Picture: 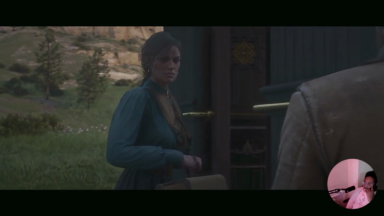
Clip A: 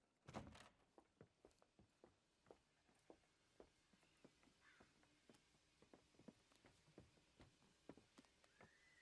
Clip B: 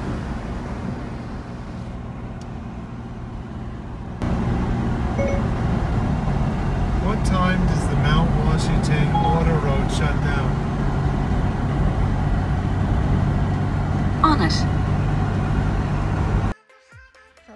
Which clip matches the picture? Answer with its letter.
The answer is A